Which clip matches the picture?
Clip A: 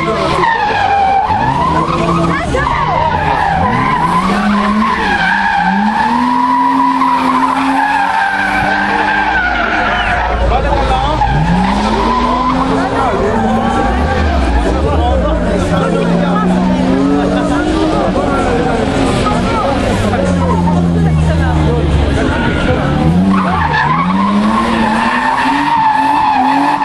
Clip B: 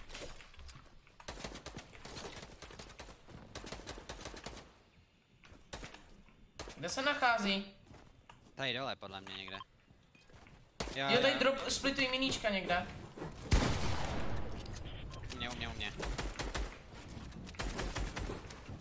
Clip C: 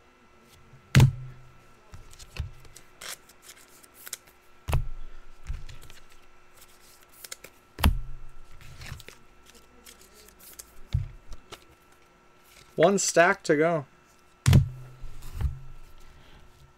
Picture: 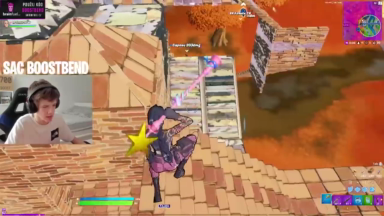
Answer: B